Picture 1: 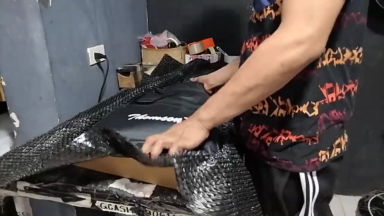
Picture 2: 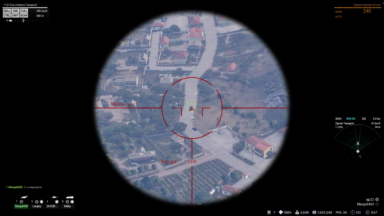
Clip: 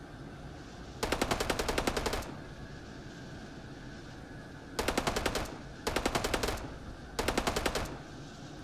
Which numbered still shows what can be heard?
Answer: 2